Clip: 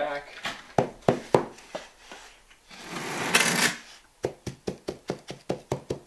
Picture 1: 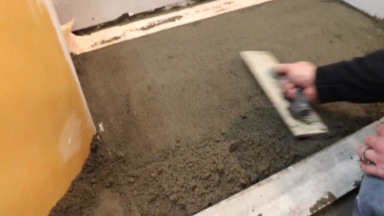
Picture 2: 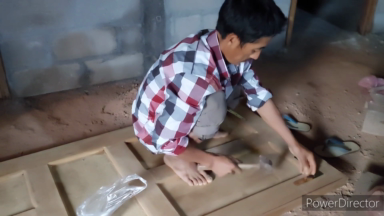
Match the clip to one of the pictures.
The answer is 1